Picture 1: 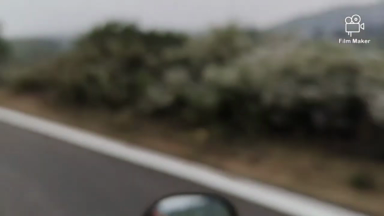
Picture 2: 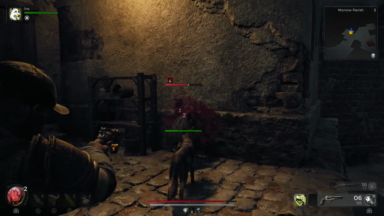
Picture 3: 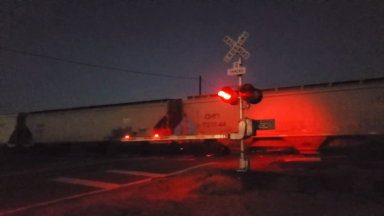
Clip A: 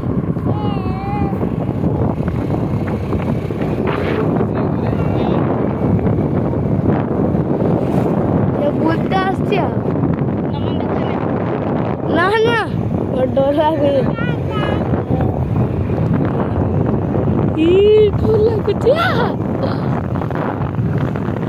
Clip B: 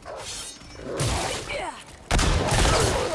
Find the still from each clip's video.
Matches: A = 1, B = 2